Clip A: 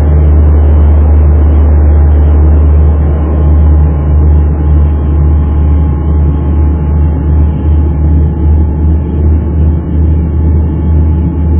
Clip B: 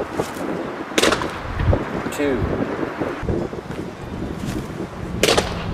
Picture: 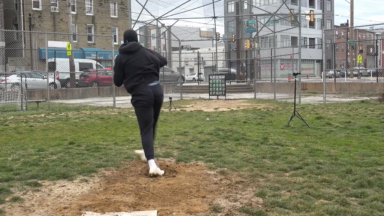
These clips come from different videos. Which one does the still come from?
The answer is B